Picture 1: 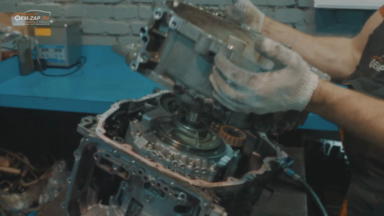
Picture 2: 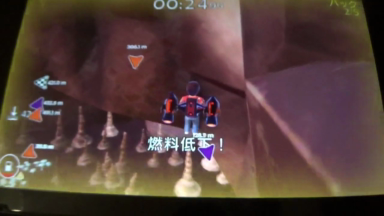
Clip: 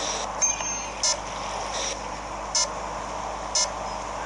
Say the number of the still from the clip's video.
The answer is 2